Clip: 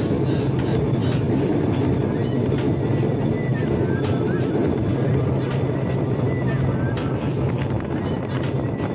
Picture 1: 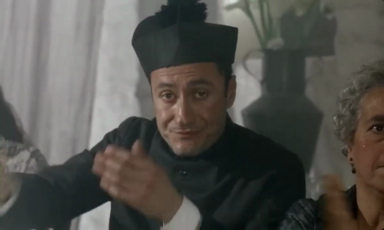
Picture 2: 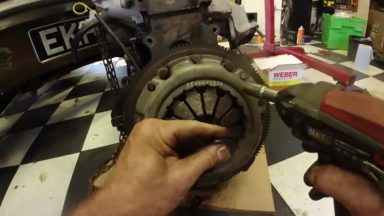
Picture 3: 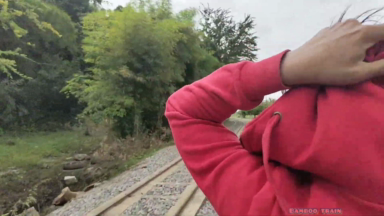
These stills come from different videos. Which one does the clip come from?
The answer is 3